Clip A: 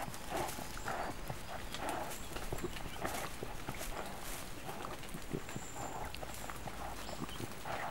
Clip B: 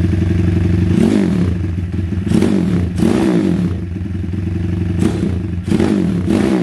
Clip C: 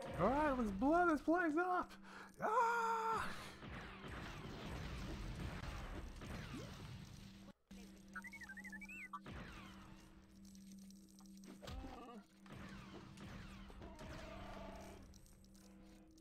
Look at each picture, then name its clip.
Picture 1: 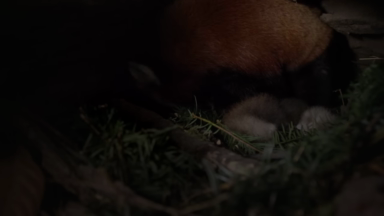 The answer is A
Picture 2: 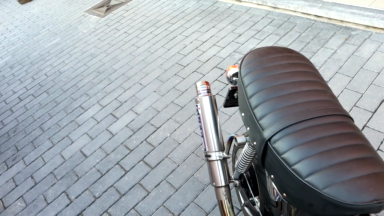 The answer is B